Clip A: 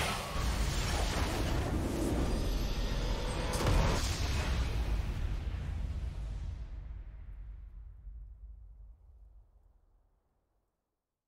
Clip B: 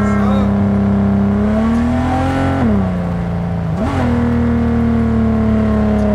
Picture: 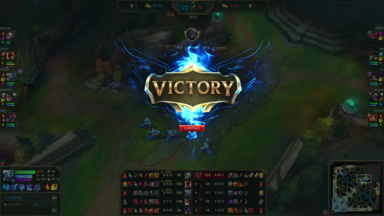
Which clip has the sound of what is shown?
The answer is A